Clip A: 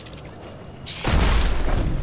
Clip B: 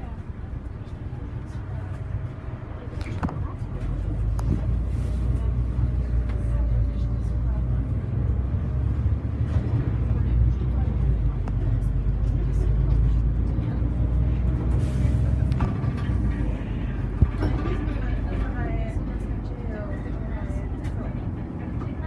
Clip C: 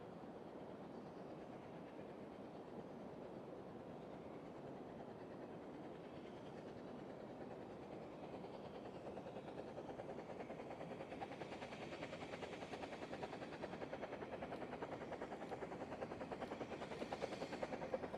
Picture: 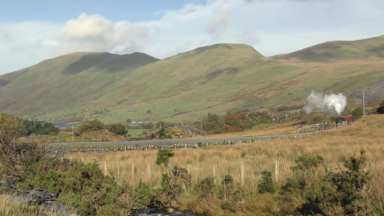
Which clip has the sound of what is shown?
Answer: C